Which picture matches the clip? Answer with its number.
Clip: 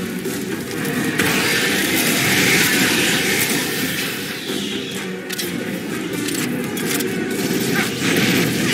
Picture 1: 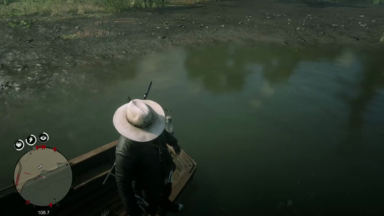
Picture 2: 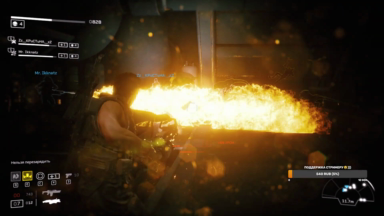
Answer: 2